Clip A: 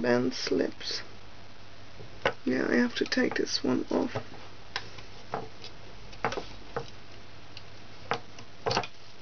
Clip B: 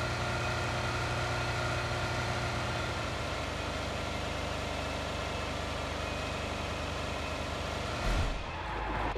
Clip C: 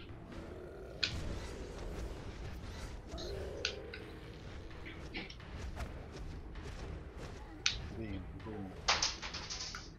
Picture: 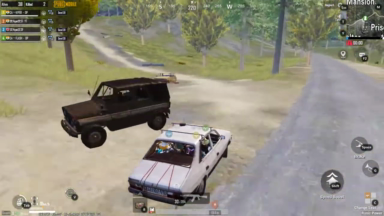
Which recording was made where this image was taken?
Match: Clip B